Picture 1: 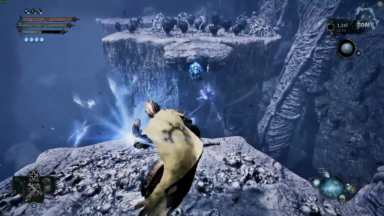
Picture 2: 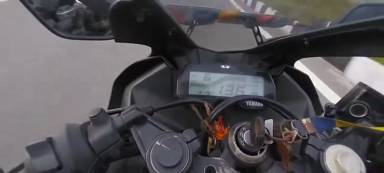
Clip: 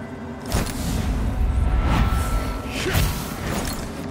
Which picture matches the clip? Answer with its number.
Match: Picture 1